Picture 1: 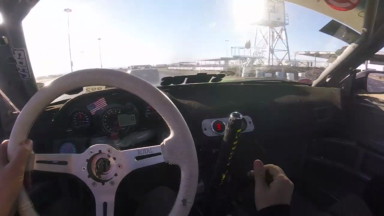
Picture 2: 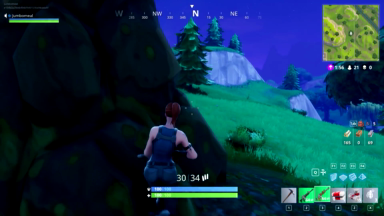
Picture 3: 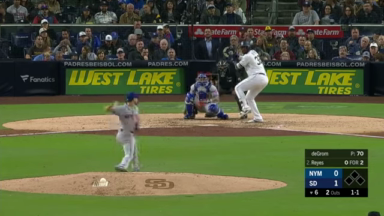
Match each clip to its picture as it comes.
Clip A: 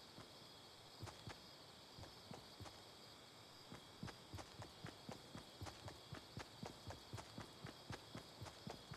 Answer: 2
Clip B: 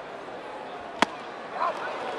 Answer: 3